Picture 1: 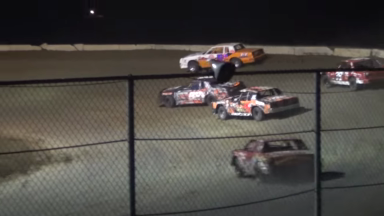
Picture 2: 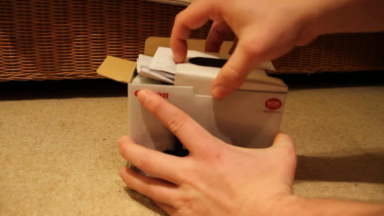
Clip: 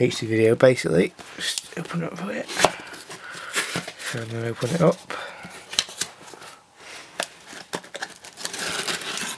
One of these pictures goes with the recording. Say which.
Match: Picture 2